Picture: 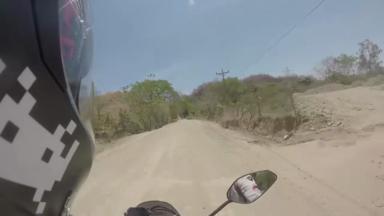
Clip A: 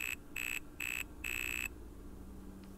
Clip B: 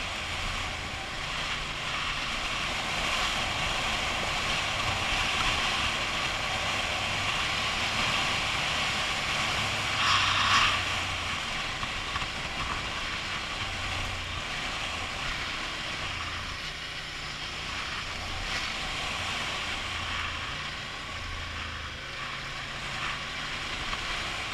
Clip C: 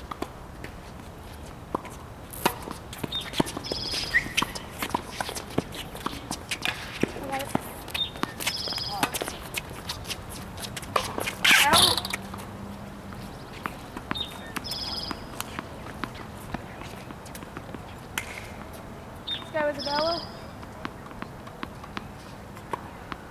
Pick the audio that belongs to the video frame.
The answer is B